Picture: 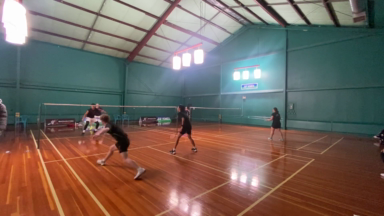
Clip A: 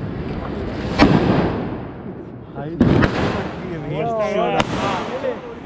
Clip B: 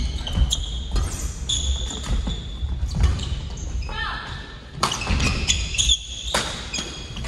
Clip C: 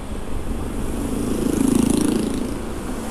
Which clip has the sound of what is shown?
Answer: B